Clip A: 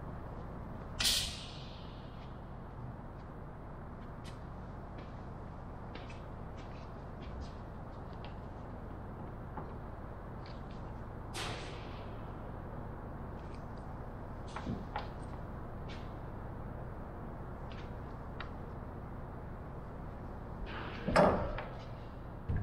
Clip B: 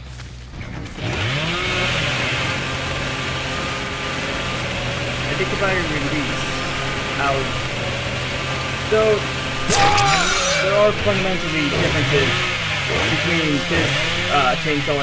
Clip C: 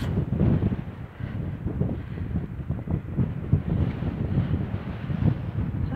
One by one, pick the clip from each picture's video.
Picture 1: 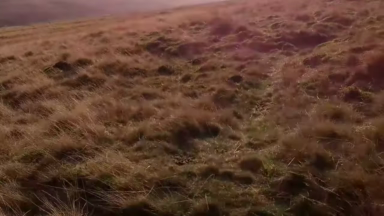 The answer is C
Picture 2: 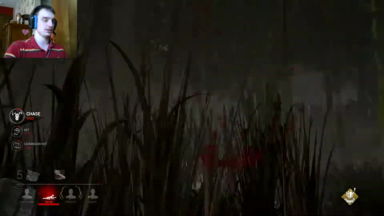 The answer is B